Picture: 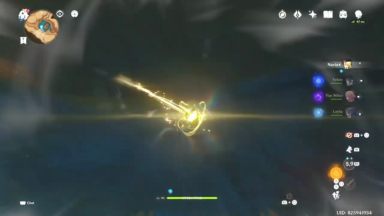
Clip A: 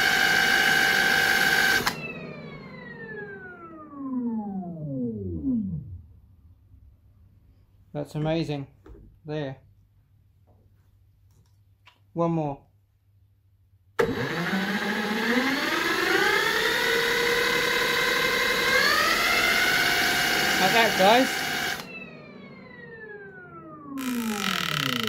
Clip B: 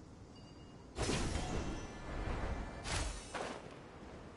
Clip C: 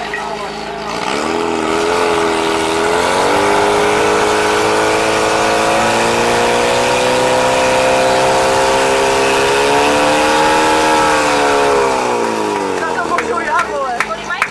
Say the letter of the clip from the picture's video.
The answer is B